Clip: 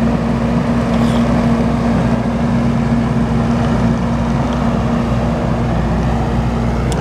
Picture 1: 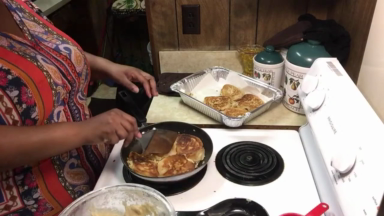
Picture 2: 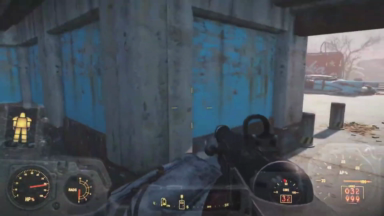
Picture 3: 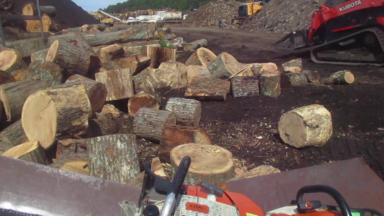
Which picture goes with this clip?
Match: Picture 3